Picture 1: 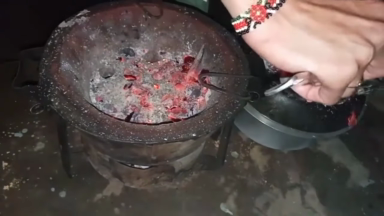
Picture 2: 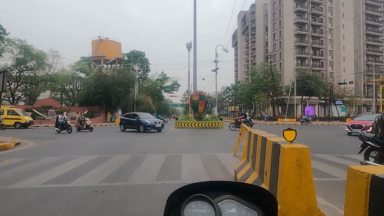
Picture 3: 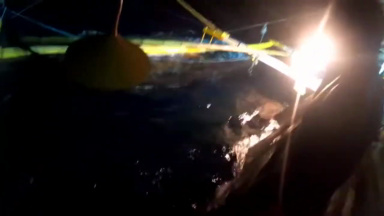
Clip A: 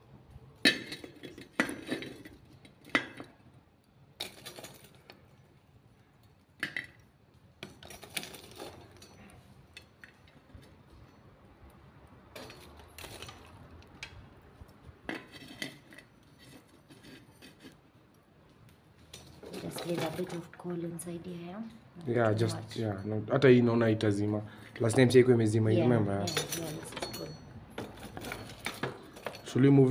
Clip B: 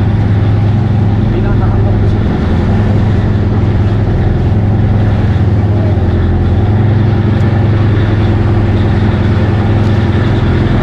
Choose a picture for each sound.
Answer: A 1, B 3